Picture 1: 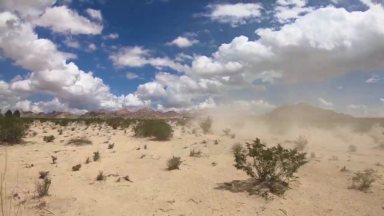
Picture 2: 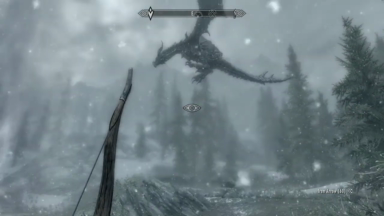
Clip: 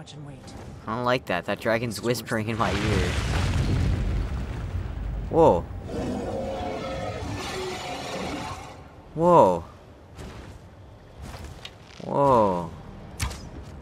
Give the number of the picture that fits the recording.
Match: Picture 2